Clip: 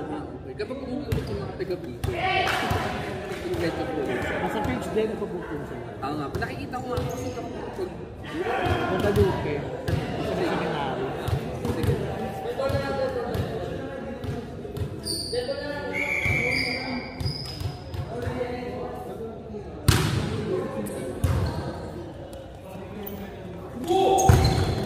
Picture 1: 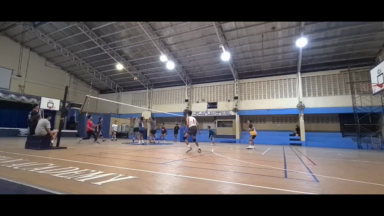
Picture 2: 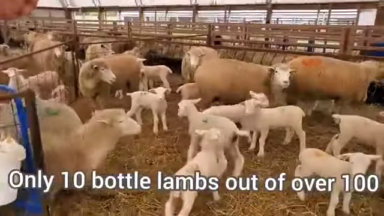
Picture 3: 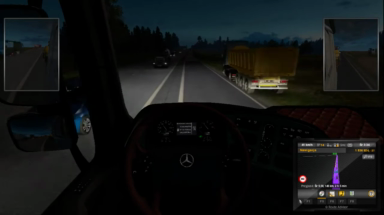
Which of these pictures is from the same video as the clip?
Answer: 1